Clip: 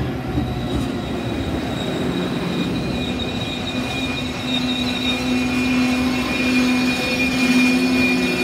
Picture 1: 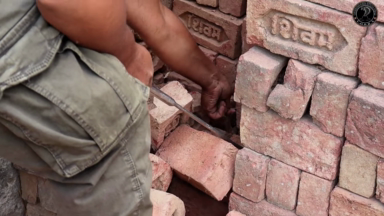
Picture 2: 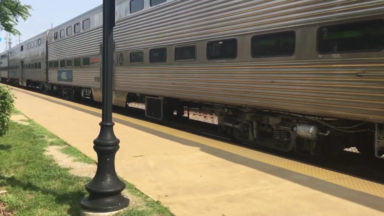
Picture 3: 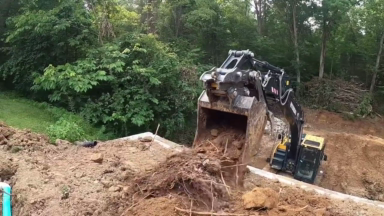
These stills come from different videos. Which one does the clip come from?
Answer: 2